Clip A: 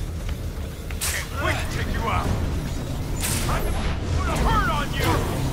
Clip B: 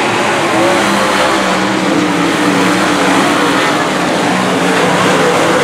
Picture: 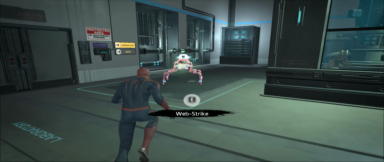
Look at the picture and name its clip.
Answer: A